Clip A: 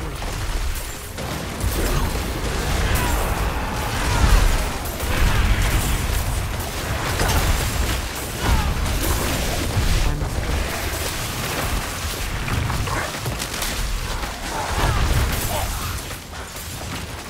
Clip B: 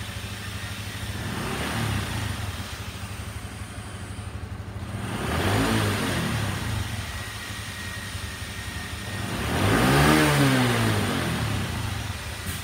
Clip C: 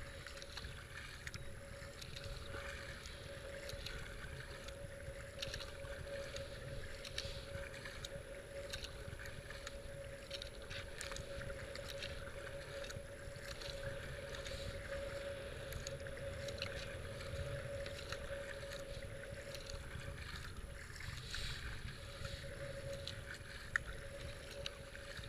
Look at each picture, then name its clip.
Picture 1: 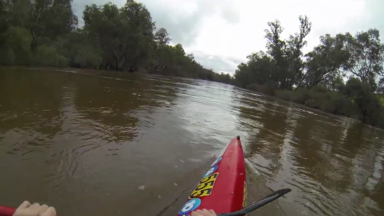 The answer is C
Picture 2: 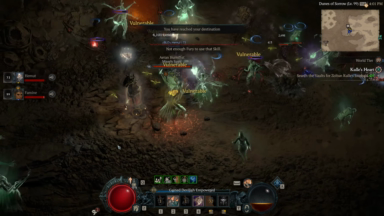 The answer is A